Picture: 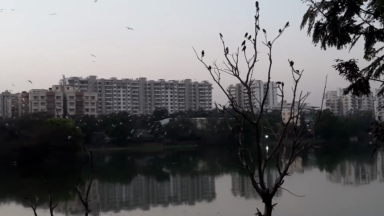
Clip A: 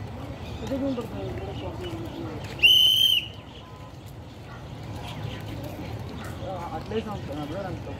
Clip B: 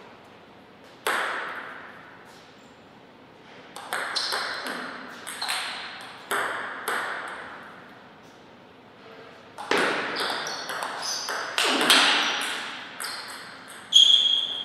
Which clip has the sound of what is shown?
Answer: A